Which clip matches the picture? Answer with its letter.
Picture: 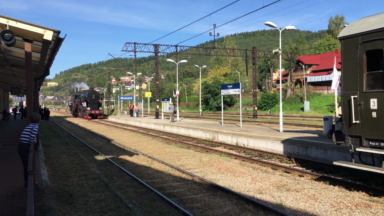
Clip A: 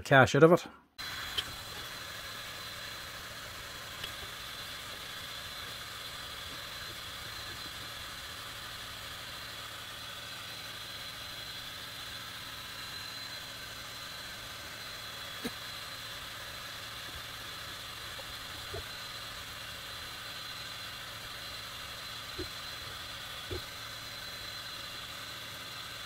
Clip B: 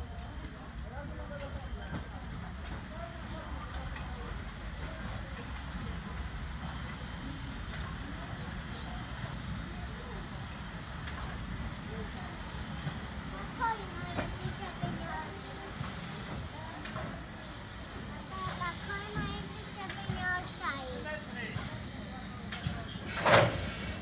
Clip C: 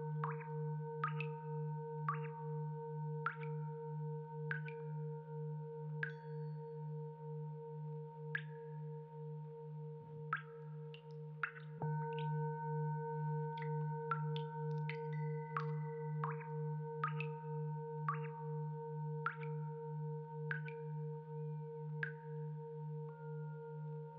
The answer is B